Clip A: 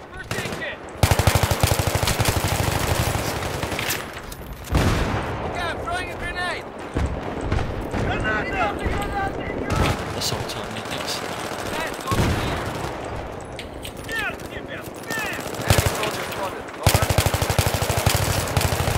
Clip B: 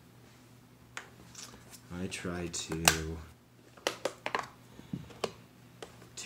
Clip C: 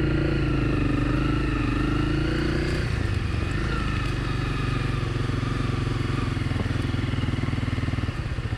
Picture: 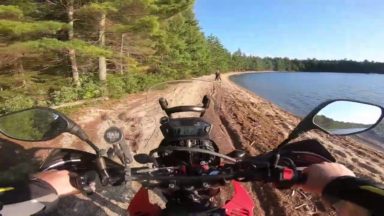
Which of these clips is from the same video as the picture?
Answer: C